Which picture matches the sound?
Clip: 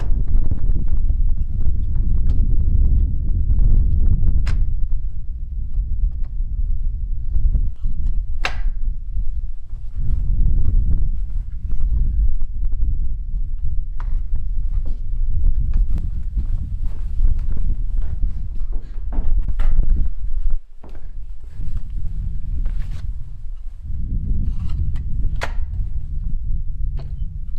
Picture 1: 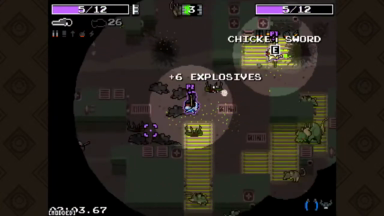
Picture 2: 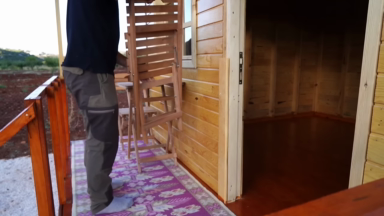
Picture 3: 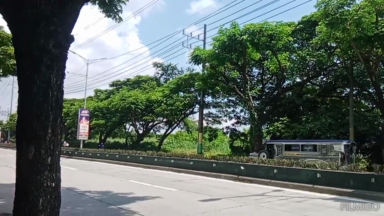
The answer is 2